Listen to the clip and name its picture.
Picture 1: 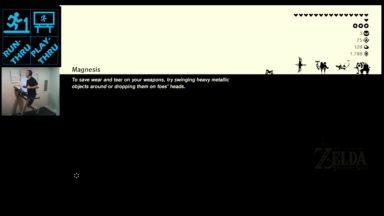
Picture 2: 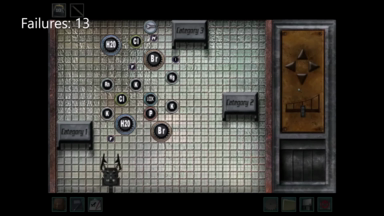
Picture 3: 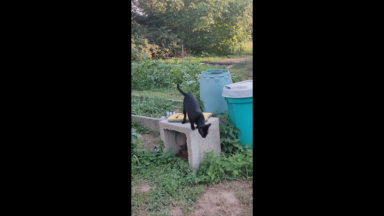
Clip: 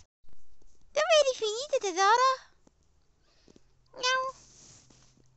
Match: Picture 3